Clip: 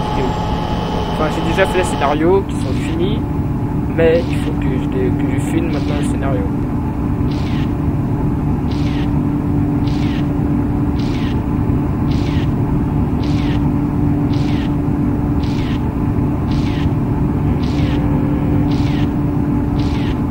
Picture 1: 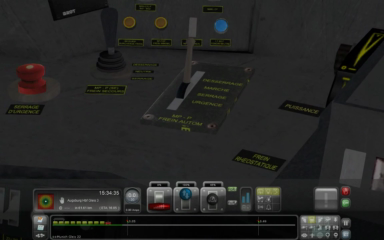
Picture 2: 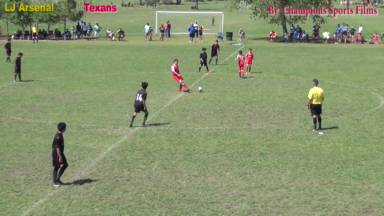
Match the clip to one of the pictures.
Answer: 1